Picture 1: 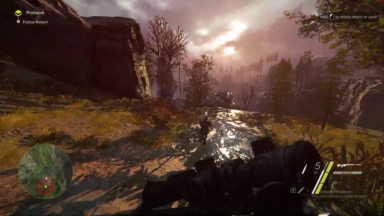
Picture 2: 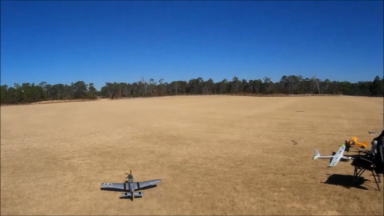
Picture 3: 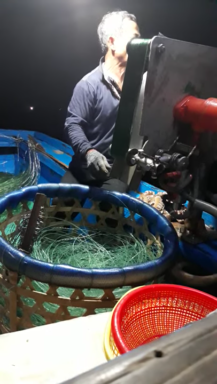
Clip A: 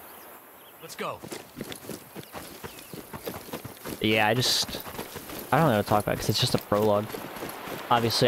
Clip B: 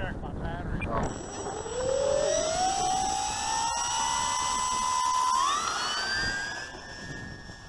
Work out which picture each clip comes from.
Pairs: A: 1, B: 2